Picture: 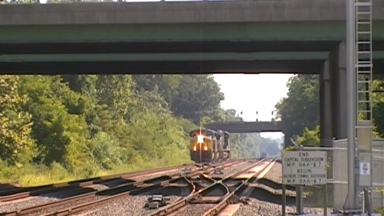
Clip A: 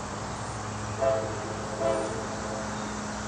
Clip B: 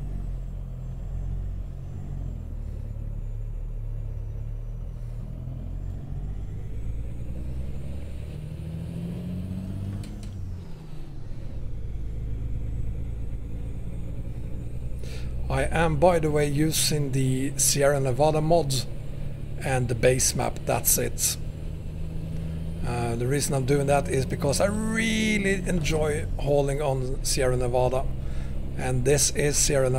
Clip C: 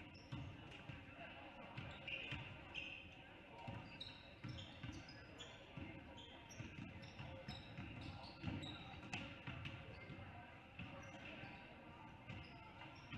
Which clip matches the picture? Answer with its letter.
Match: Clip A